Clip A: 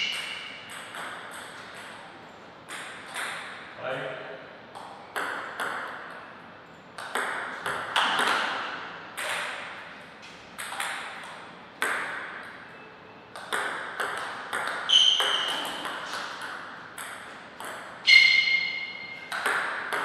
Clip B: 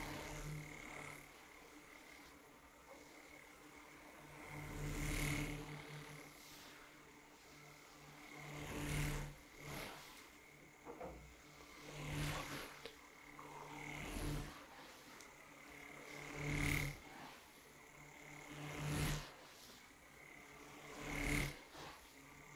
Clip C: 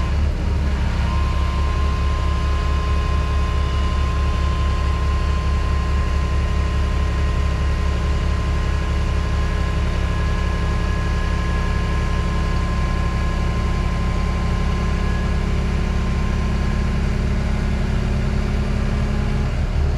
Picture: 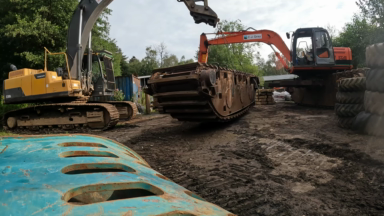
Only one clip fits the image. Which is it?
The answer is C